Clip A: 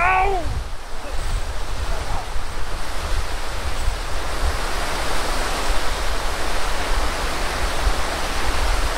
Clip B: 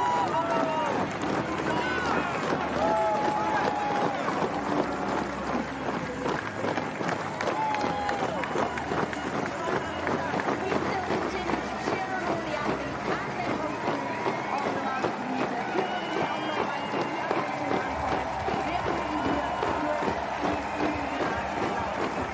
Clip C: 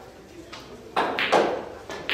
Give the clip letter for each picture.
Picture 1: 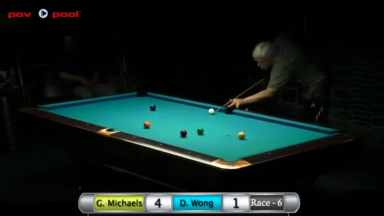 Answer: C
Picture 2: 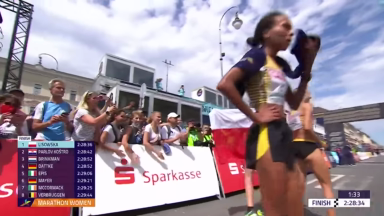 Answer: B